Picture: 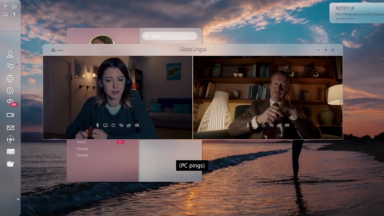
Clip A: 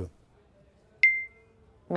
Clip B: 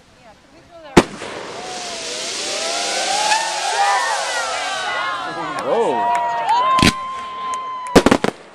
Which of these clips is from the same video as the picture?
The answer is A